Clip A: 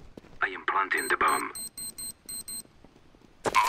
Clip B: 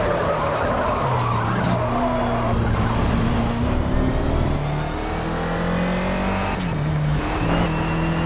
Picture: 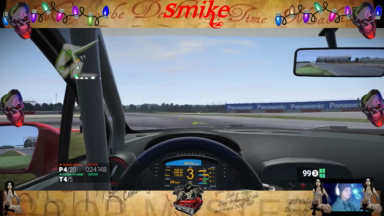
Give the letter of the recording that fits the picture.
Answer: B